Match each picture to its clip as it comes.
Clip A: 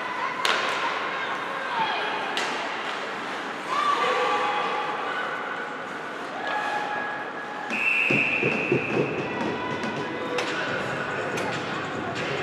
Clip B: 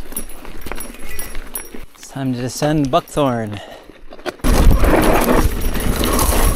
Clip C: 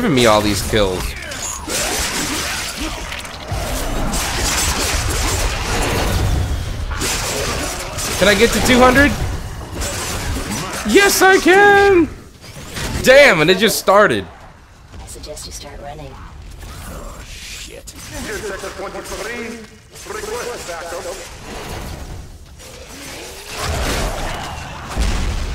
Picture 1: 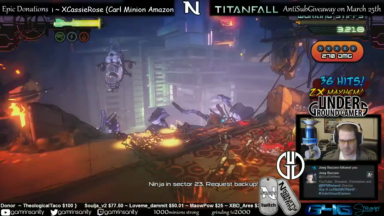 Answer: C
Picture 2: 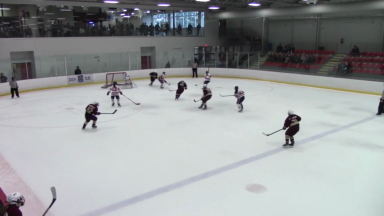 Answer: A